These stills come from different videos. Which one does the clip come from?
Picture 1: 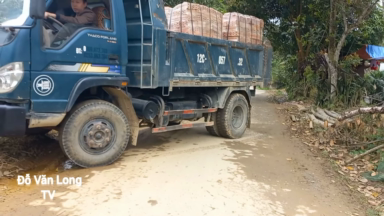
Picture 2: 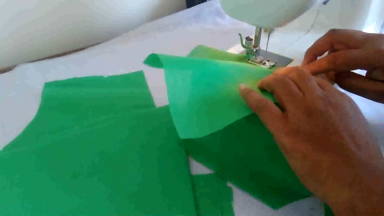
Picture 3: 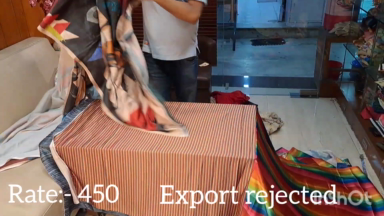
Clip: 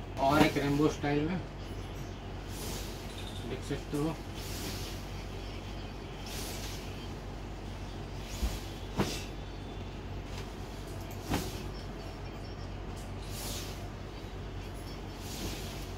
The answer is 3